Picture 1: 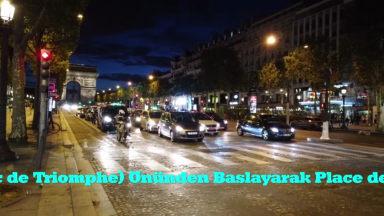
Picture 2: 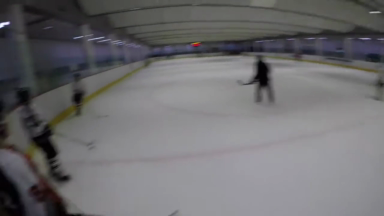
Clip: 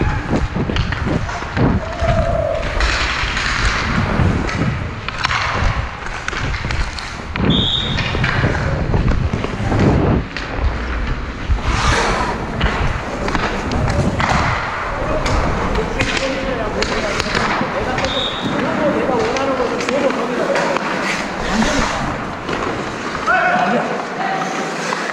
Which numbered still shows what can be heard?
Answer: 2